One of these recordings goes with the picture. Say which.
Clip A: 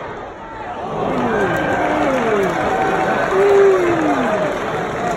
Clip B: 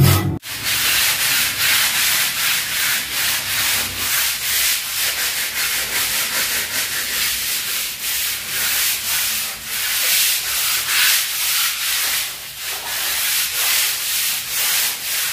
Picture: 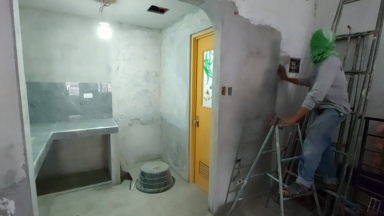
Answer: B